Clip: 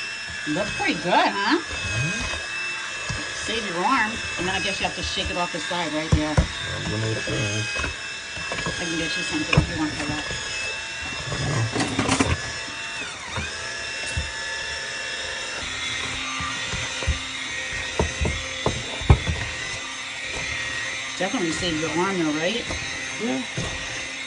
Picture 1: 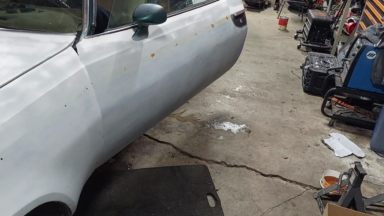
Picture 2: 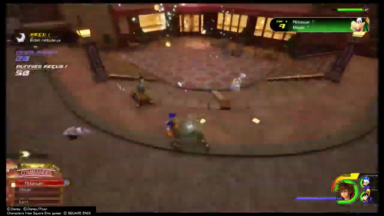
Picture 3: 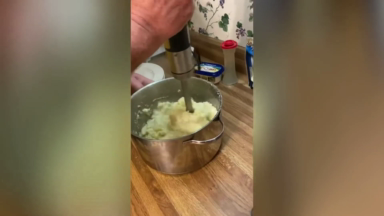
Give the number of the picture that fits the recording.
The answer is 3